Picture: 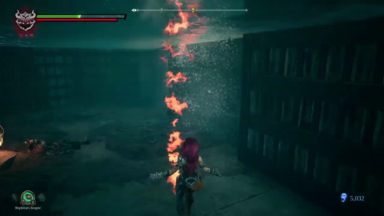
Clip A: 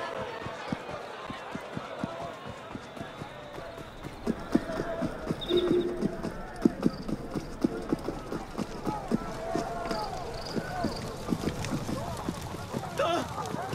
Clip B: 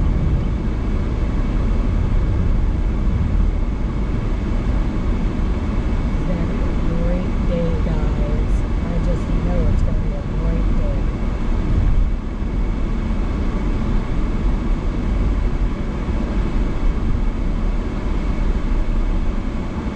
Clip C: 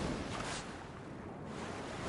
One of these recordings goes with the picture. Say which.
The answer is C